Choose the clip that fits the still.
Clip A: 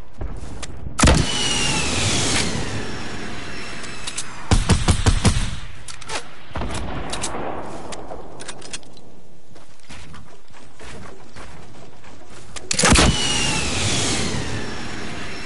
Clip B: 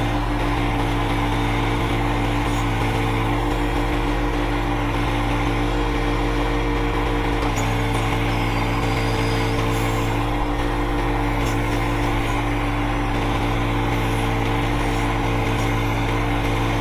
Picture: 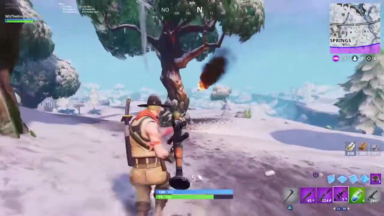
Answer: A